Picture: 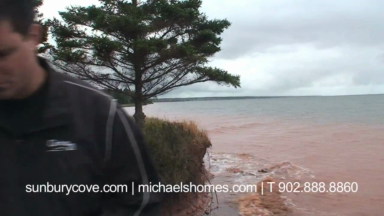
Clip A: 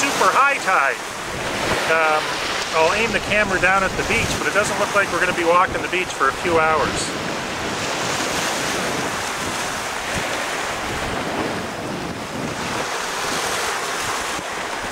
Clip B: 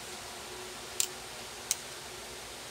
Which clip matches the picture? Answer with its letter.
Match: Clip A